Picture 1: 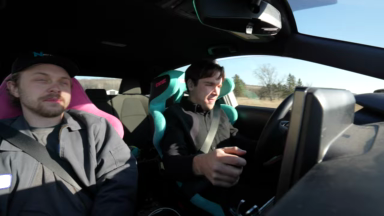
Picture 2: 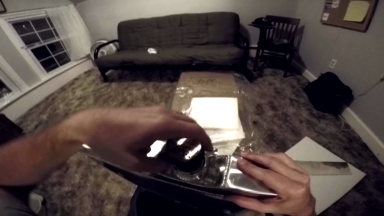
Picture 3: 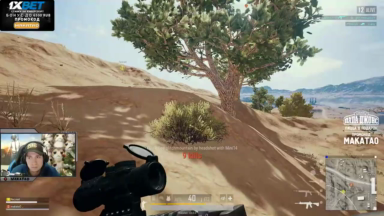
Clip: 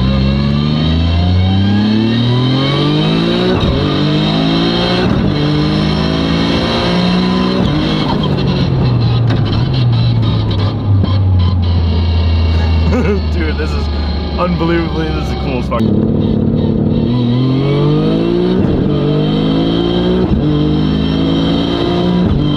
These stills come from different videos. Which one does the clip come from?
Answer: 1